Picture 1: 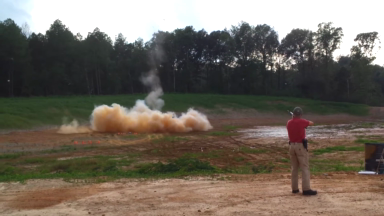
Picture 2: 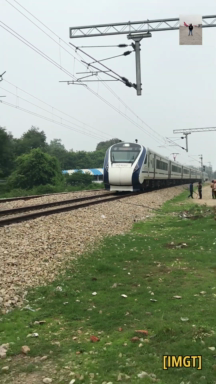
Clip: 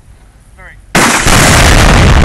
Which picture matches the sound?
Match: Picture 1